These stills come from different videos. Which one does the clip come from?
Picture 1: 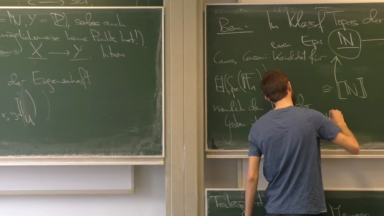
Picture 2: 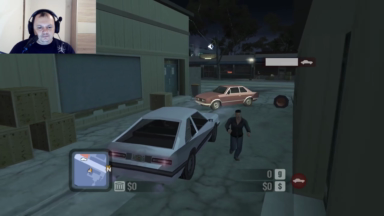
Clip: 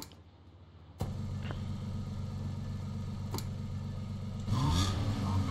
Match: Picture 2